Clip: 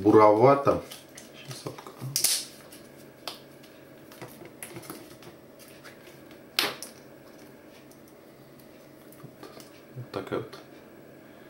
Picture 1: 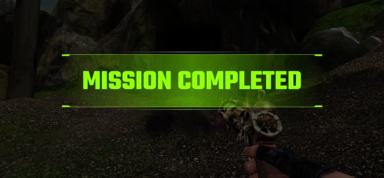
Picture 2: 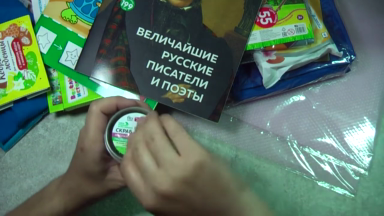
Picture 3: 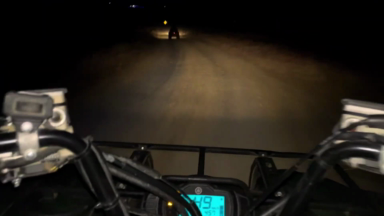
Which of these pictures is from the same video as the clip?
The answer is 2